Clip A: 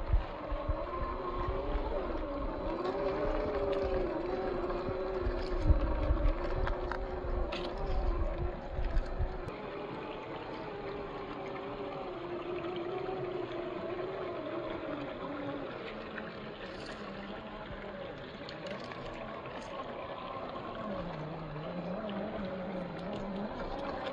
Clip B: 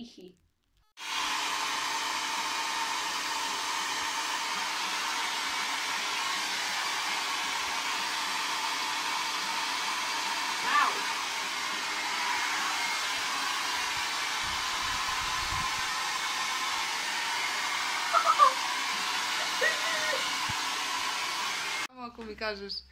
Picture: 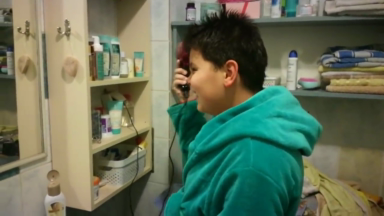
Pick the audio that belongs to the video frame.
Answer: B